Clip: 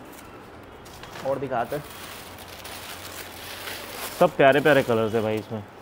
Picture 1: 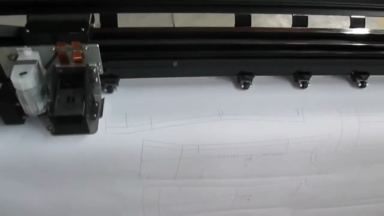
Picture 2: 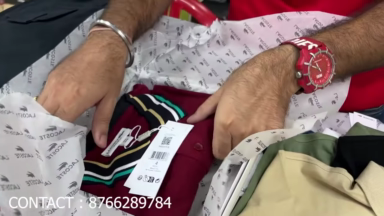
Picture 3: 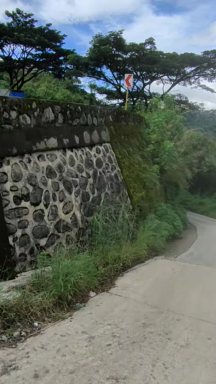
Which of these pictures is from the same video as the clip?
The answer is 2